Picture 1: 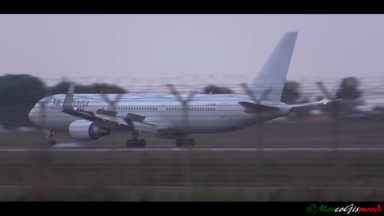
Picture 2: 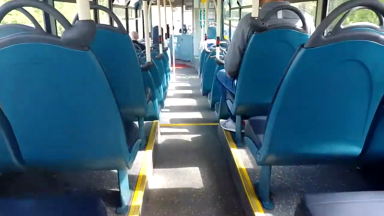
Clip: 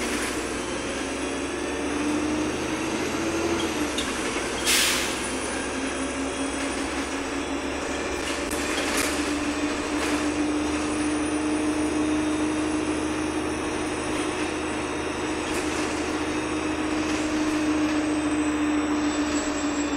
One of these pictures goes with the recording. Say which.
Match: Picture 2